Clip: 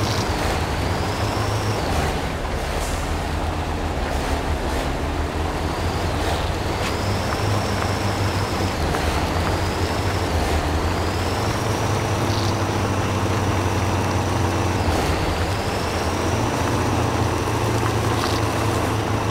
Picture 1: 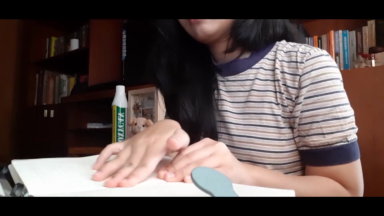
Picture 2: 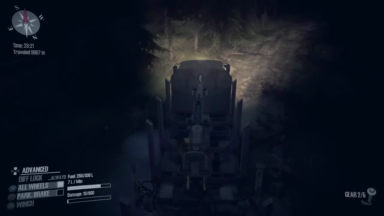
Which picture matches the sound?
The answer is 2